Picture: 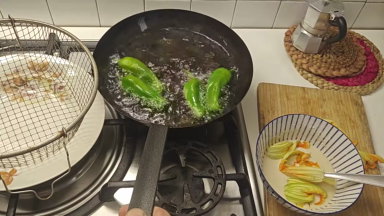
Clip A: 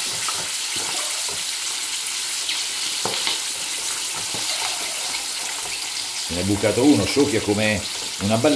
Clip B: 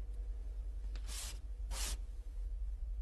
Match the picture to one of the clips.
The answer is A